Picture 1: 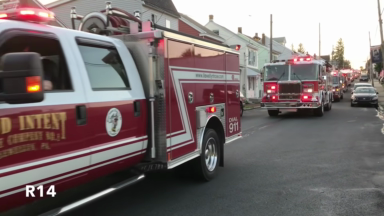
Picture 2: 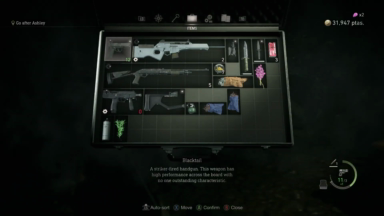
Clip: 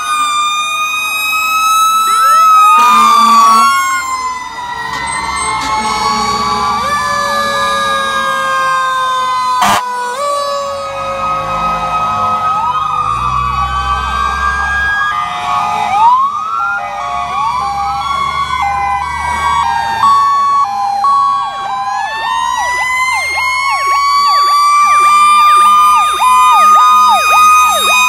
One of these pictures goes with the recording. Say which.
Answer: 1